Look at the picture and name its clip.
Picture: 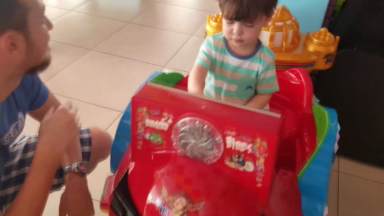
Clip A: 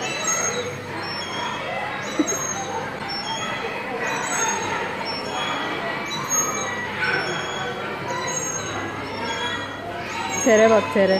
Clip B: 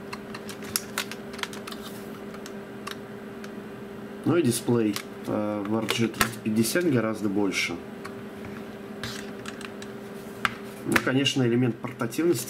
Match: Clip A